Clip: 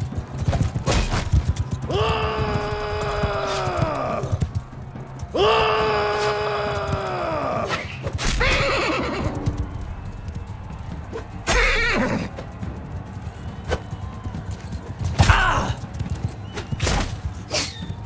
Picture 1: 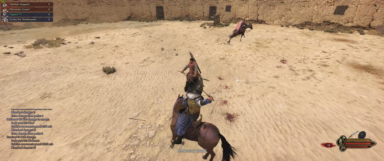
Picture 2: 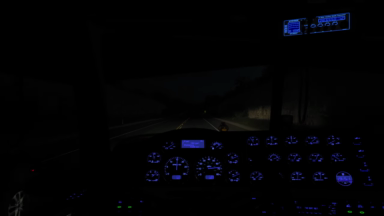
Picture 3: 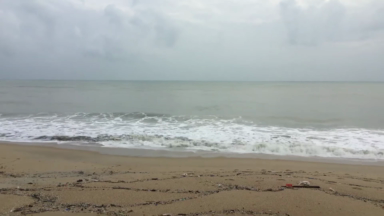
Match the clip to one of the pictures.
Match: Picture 1